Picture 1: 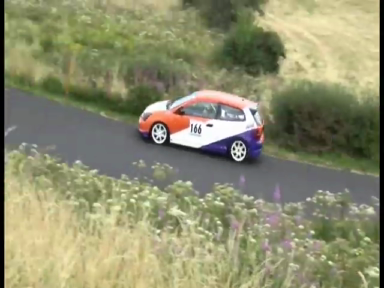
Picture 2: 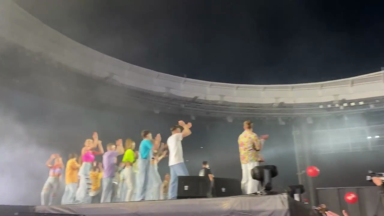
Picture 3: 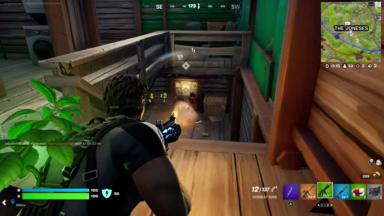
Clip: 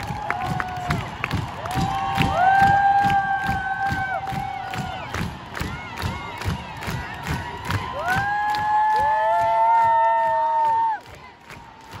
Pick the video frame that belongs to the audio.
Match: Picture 2